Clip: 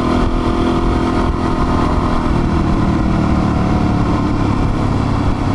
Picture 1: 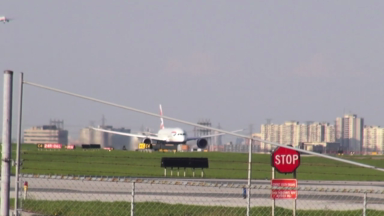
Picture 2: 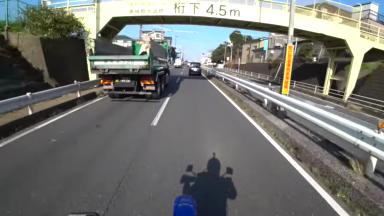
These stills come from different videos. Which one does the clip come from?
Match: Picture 2